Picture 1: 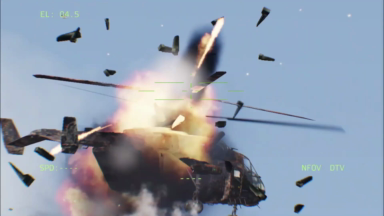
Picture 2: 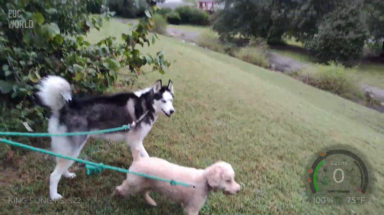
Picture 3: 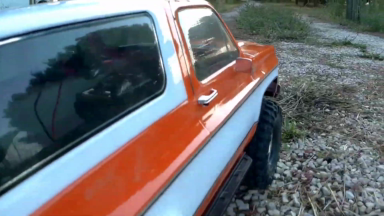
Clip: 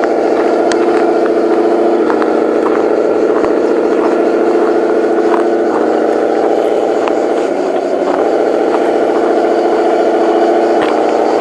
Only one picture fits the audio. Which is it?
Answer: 3